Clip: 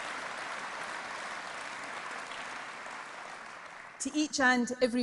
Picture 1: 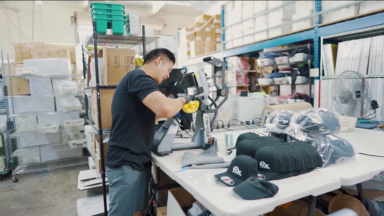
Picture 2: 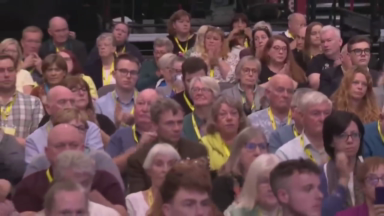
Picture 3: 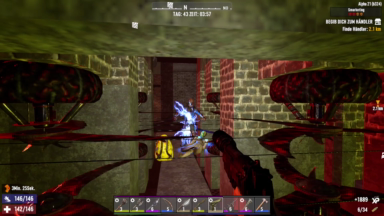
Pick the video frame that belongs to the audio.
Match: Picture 2